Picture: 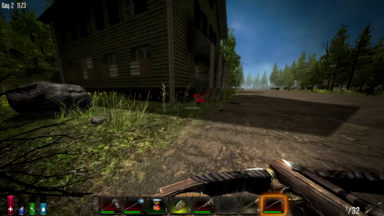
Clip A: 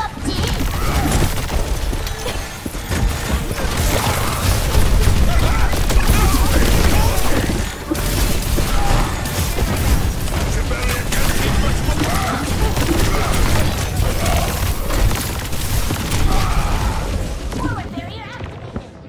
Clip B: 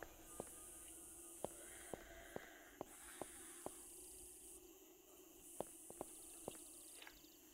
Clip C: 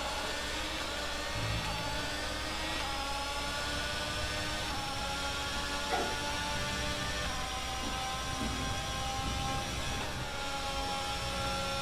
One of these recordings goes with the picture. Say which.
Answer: B